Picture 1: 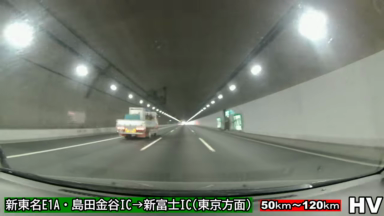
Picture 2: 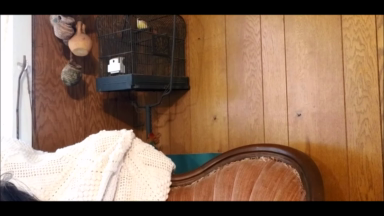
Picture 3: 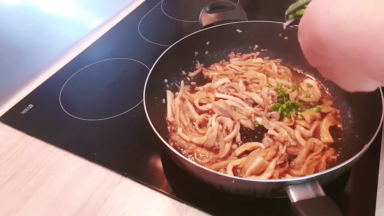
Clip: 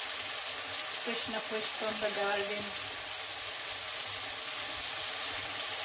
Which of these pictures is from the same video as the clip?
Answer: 3